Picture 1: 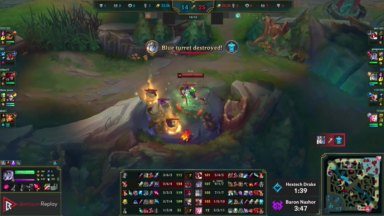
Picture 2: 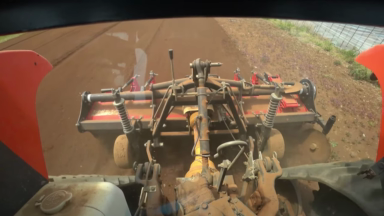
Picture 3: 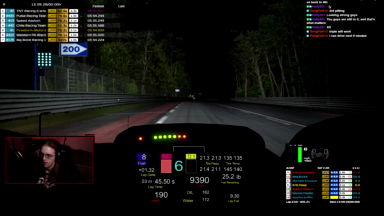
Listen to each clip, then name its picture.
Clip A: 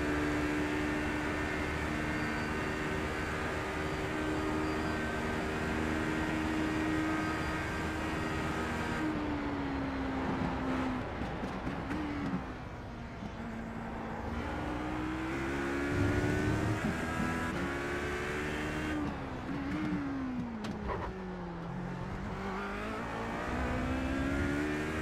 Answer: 3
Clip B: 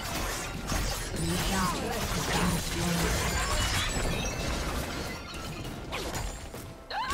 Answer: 1